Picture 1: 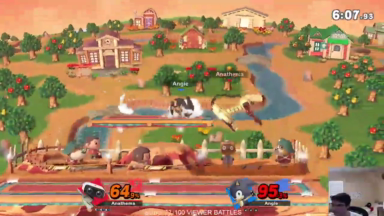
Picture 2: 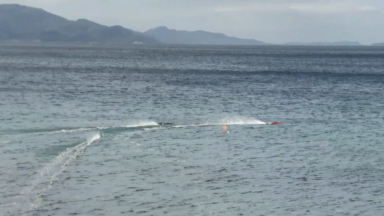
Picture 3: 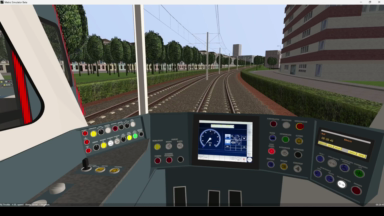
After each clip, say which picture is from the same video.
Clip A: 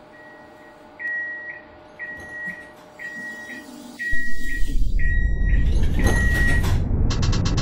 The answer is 3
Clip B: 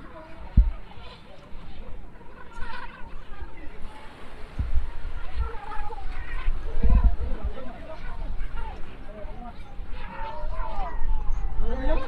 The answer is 2